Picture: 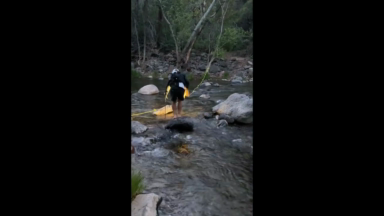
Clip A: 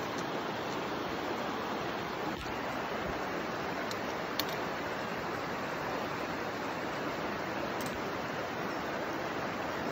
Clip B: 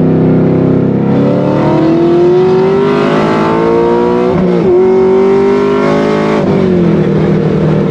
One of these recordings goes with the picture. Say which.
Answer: A